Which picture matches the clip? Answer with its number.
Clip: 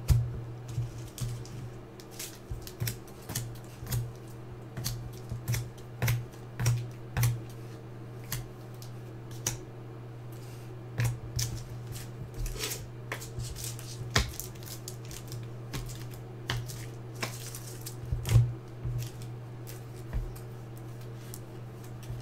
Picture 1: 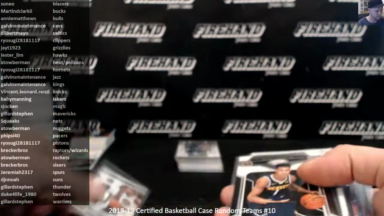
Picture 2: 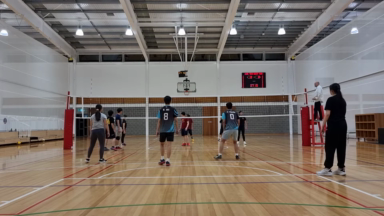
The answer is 1